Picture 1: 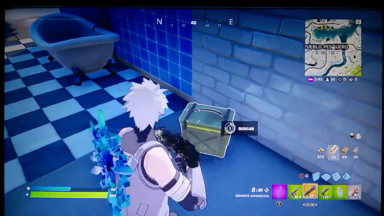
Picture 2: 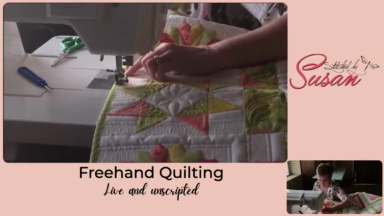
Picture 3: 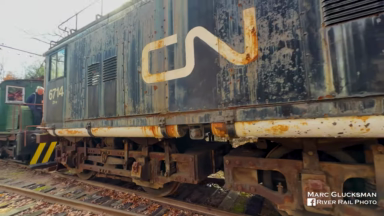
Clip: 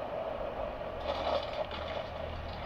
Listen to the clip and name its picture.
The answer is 1